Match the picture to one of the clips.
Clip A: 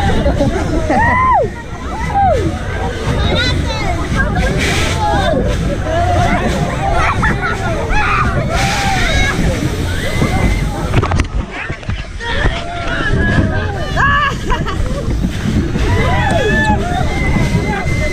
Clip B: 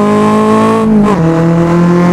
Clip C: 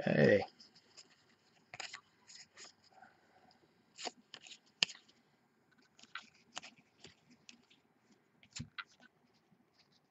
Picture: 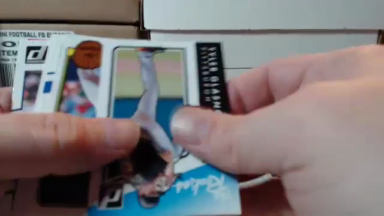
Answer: C